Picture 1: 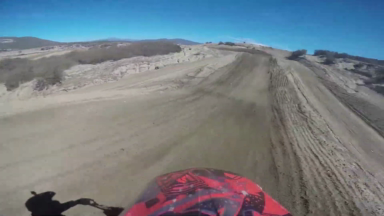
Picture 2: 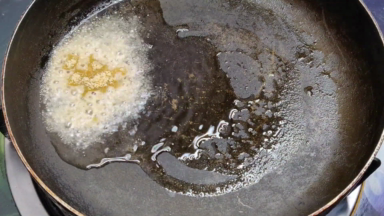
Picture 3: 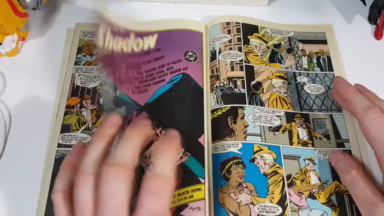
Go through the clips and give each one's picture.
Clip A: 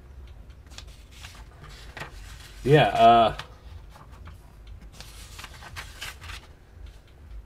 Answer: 3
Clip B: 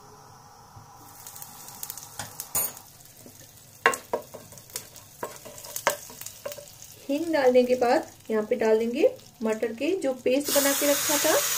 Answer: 2